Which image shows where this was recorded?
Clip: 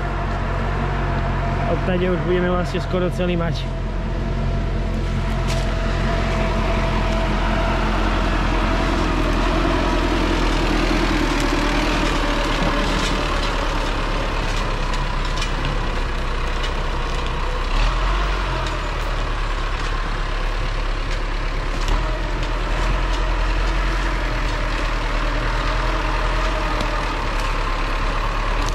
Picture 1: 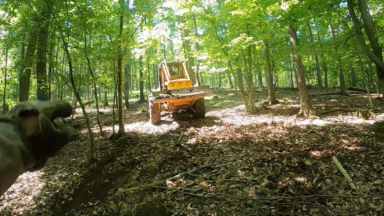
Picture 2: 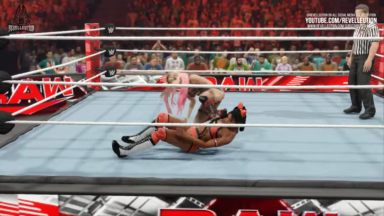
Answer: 1